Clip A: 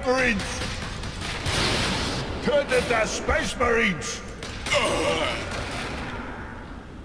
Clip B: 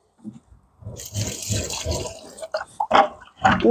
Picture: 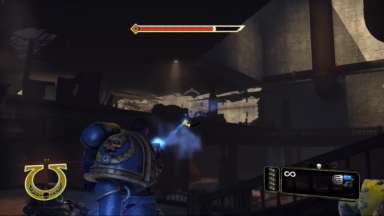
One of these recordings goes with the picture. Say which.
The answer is A